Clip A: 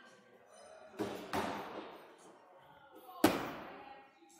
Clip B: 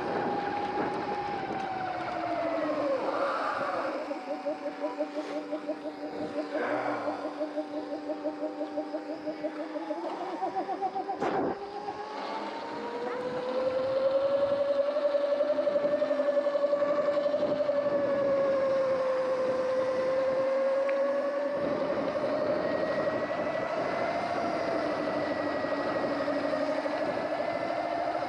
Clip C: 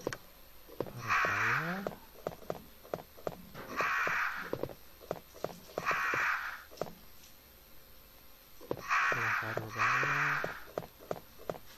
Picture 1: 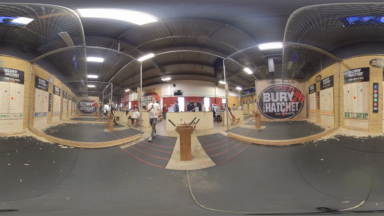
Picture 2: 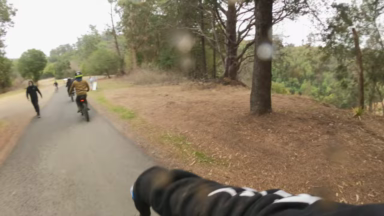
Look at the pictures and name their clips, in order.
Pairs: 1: A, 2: B